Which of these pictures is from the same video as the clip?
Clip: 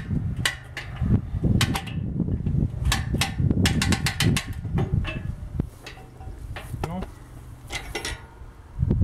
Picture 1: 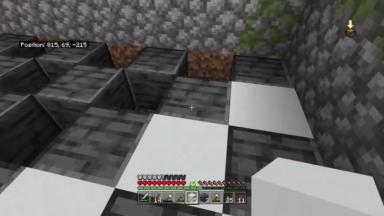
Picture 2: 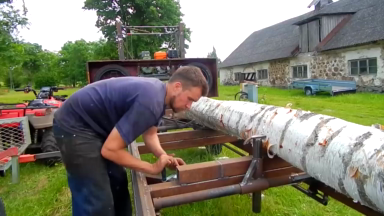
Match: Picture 2